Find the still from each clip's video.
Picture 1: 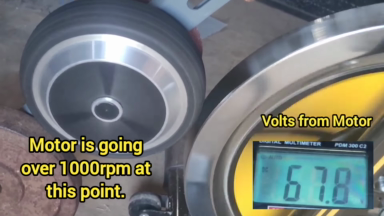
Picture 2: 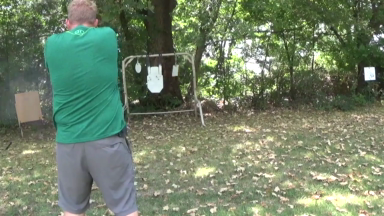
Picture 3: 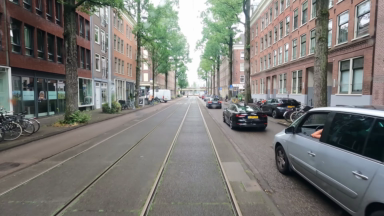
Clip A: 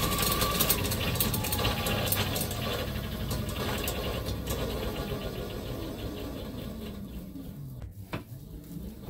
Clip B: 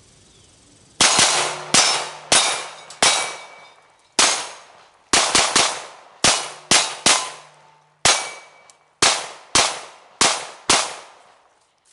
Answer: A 1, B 2